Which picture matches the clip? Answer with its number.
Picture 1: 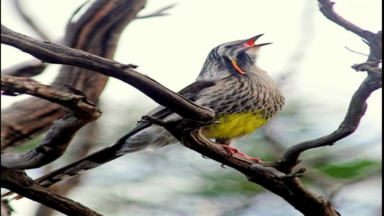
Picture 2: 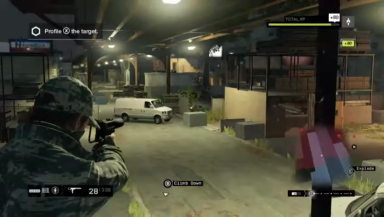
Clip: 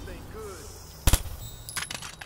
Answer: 2